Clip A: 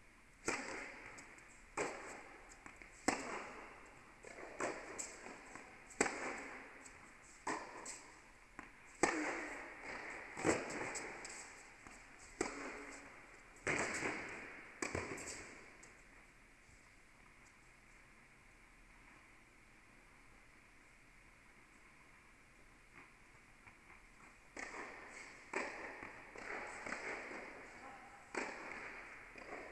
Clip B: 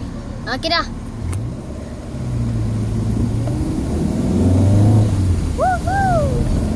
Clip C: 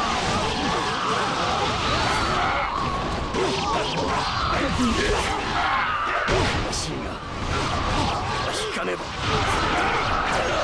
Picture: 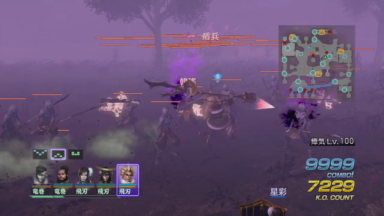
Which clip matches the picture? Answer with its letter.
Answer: C